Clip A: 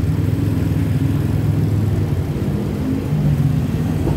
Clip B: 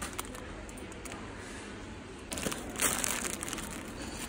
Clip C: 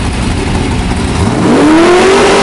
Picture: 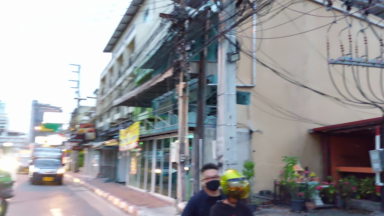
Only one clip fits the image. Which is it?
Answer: A